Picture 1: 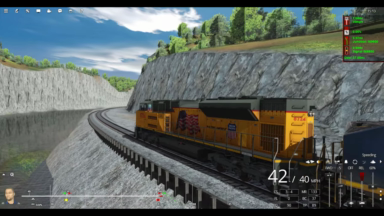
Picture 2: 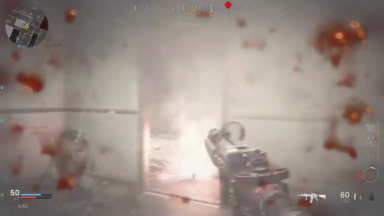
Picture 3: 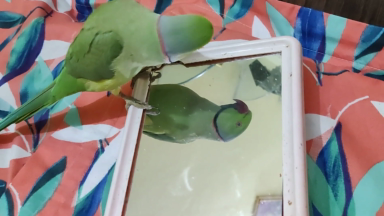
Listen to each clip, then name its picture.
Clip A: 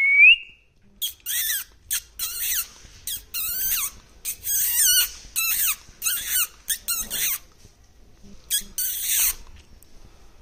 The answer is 3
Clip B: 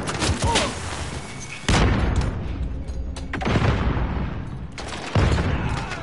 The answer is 2